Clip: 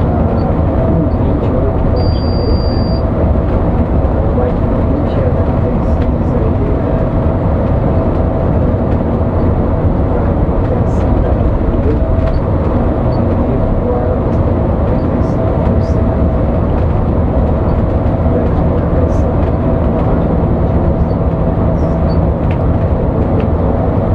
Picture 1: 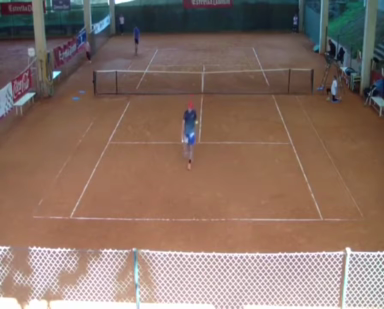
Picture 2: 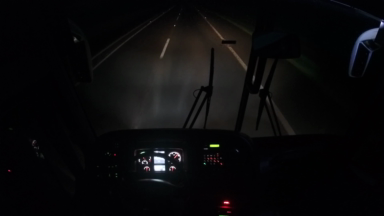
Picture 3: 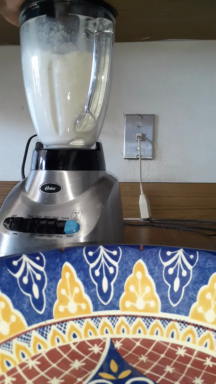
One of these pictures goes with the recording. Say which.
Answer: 2